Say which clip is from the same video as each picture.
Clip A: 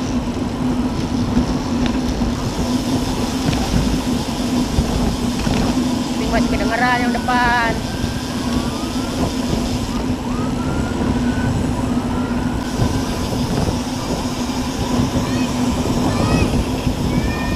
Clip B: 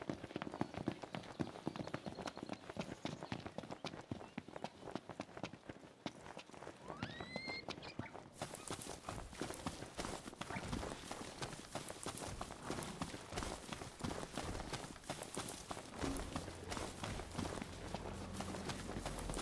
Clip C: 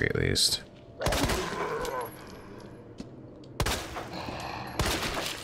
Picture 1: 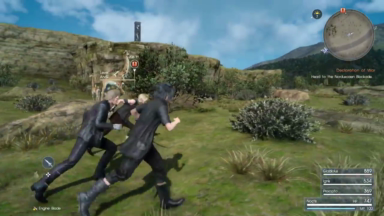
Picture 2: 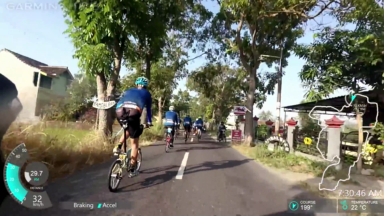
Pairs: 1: B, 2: A